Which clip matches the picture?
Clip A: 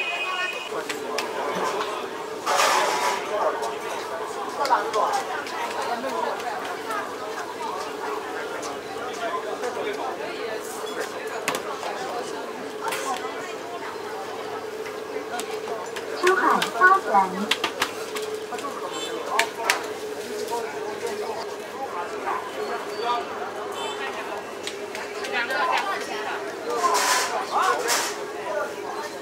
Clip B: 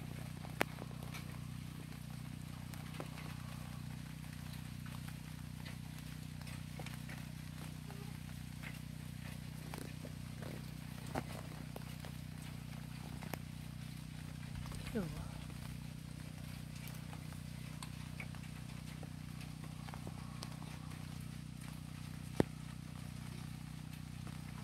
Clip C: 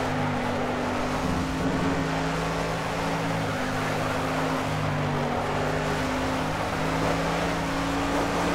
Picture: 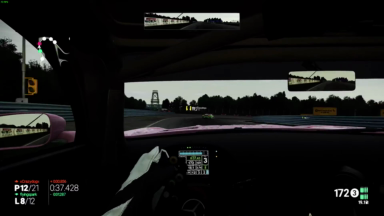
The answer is C